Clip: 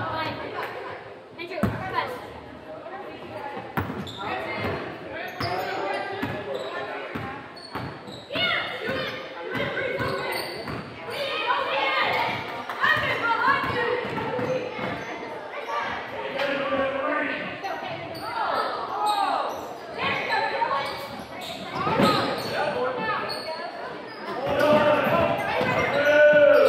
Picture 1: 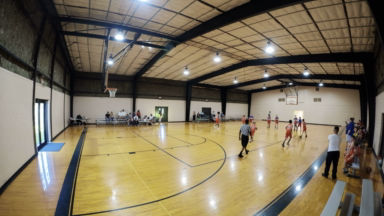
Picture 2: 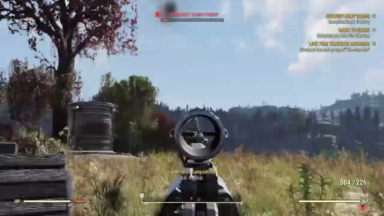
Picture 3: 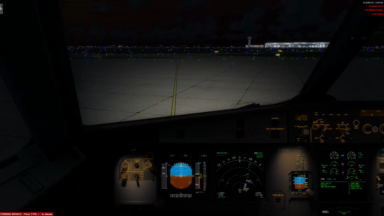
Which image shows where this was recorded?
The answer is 1